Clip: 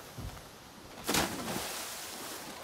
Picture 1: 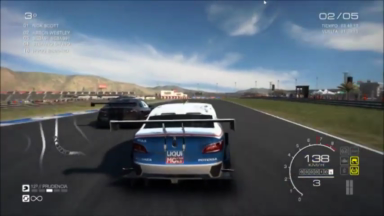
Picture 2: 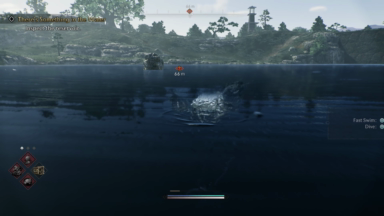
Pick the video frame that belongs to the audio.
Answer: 2